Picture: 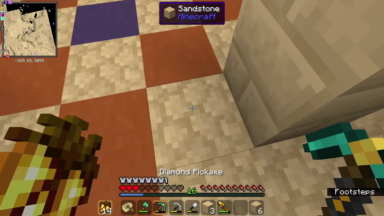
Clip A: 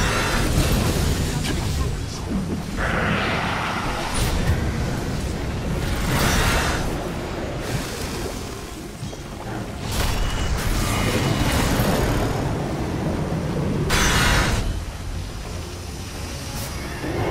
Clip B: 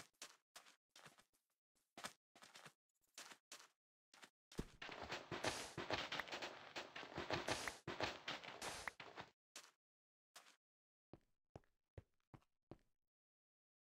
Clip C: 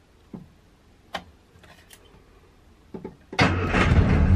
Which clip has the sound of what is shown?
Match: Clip B